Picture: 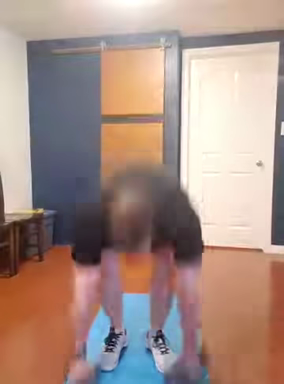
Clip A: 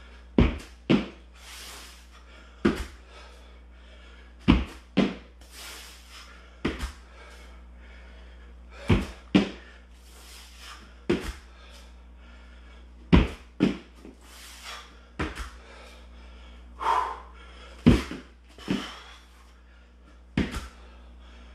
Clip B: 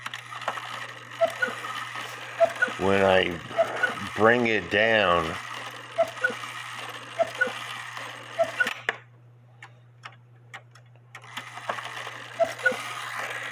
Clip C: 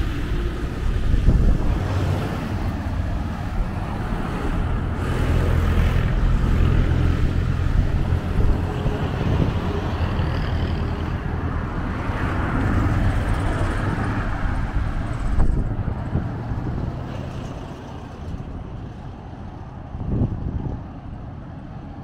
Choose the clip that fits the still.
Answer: A